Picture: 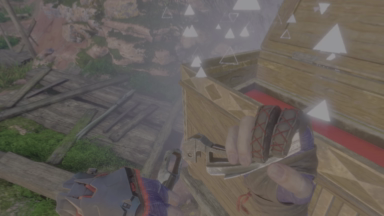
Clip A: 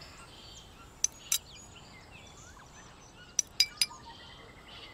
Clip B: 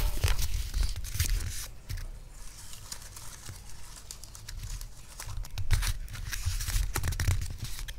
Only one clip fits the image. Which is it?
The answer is A